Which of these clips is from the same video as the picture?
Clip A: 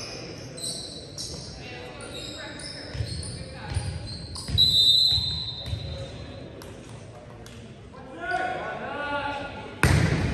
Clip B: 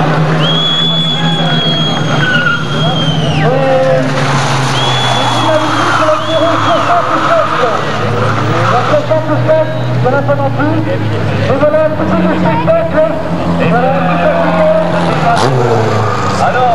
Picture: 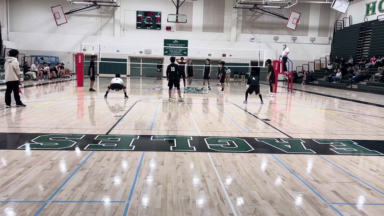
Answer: A